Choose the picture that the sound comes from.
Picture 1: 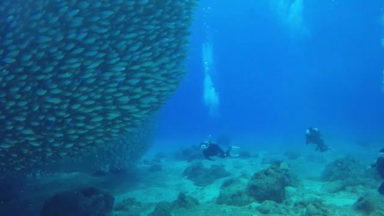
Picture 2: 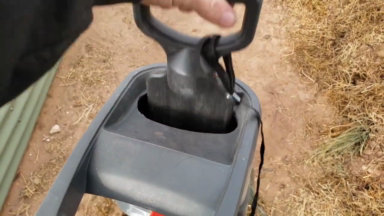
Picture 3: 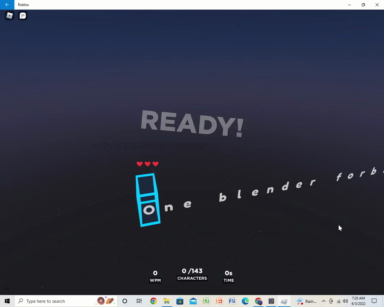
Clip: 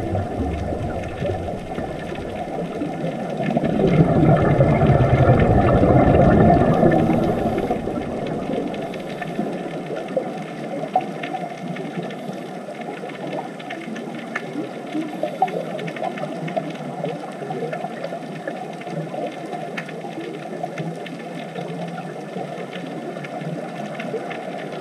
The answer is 1